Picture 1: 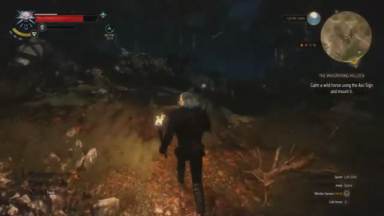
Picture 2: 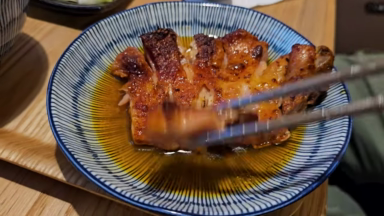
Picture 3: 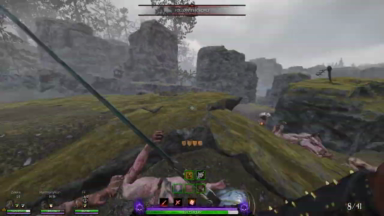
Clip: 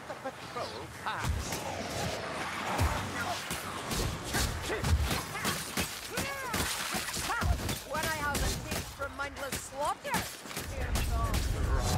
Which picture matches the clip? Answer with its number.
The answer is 3